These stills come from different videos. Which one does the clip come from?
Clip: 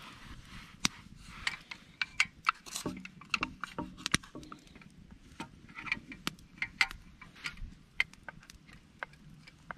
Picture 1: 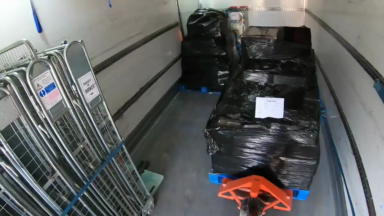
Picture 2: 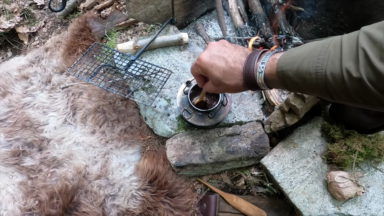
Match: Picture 2